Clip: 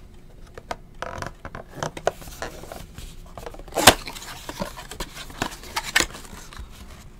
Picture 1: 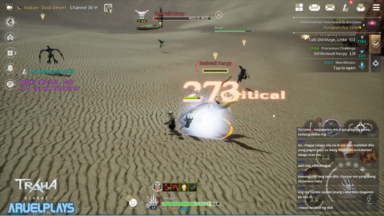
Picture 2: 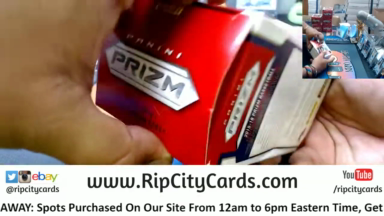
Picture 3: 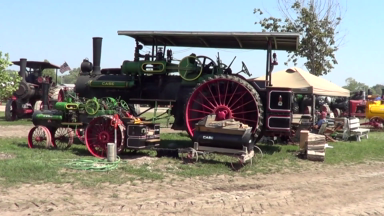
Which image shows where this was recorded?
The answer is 2